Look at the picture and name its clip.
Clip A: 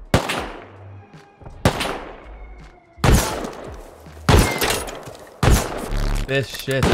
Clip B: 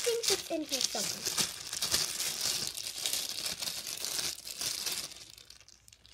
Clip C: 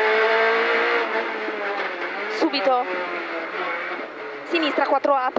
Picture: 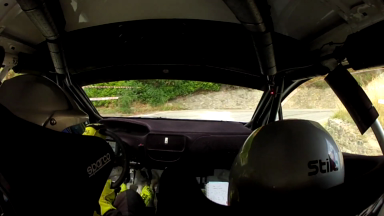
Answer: C